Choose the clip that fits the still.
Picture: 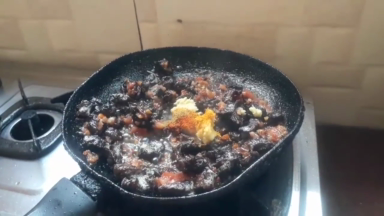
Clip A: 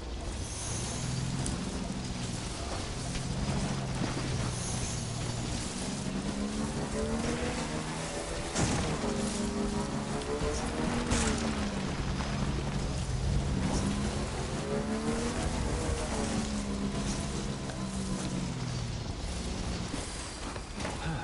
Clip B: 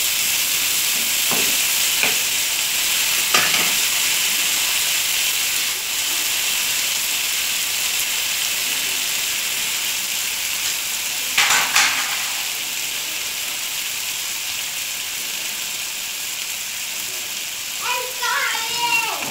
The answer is B